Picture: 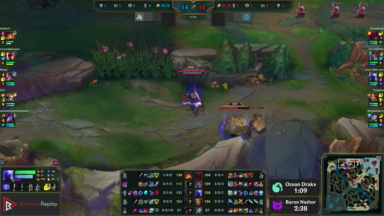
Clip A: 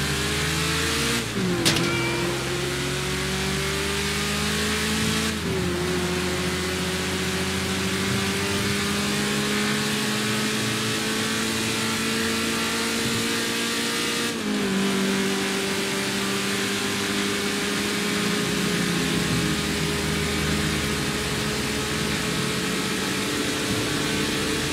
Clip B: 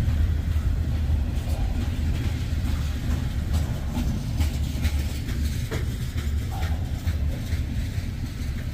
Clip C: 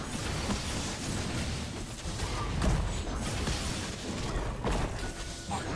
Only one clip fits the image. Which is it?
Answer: C